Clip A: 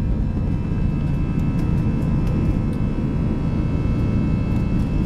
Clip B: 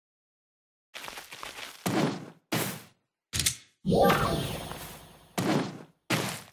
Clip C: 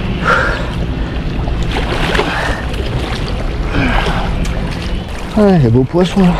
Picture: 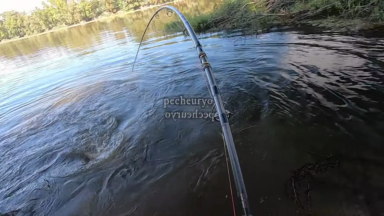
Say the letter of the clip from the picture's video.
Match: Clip C